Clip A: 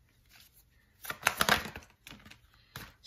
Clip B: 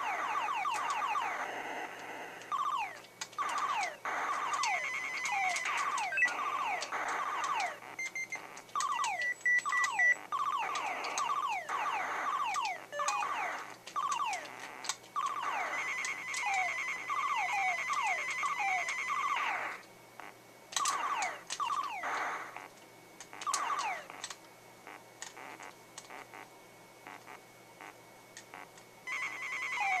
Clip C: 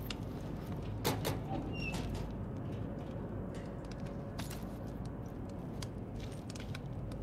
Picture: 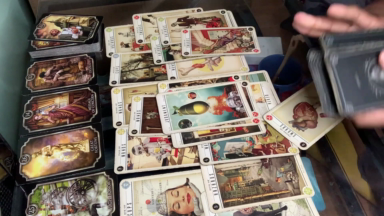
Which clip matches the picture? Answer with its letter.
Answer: A